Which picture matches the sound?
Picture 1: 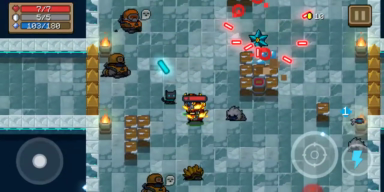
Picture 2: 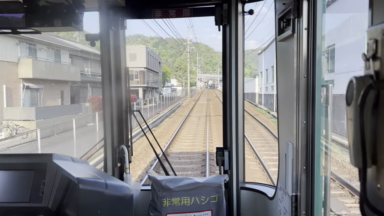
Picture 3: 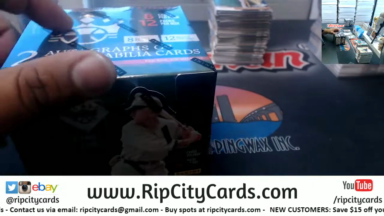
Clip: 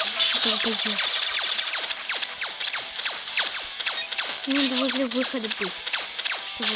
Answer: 1